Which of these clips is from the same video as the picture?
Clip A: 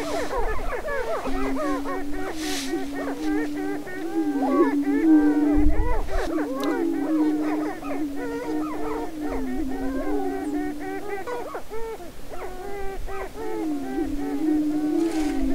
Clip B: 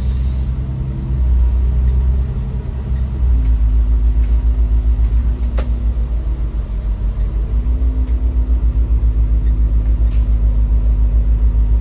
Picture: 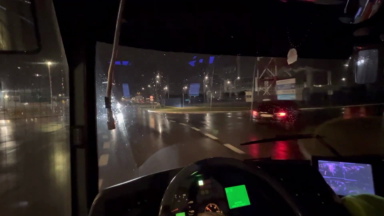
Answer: B